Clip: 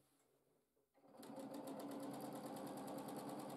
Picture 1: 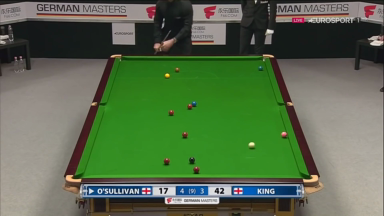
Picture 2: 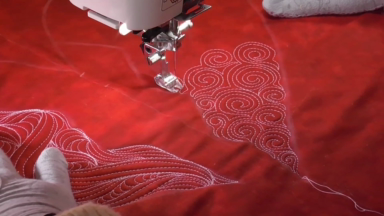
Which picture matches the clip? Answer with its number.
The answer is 2